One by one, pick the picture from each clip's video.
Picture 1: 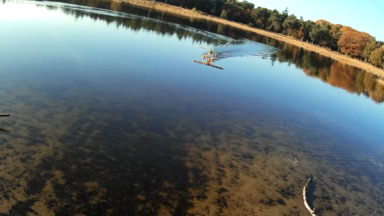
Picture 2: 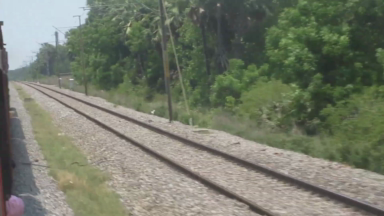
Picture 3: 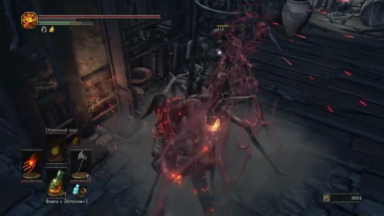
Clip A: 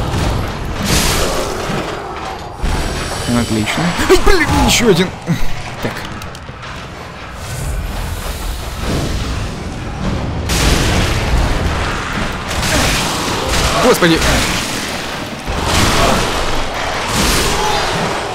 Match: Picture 3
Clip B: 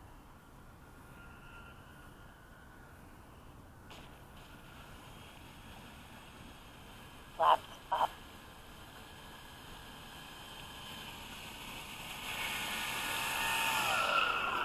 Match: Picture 1